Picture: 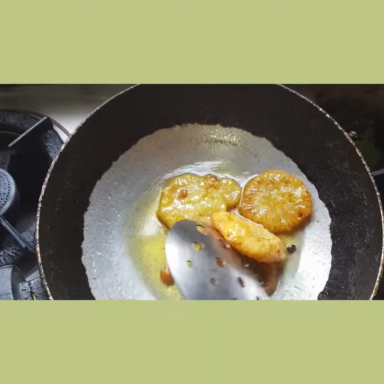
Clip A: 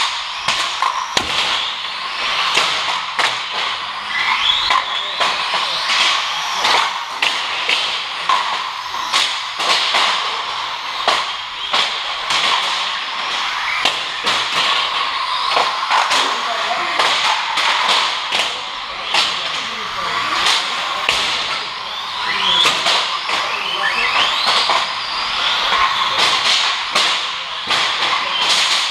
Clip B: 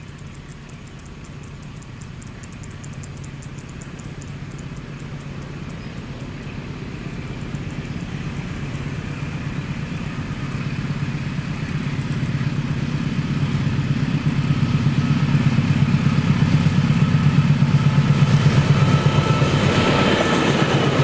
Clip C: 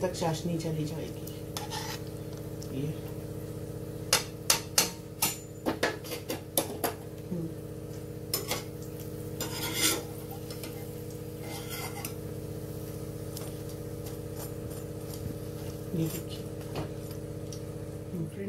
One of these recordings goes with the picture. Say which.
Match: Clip C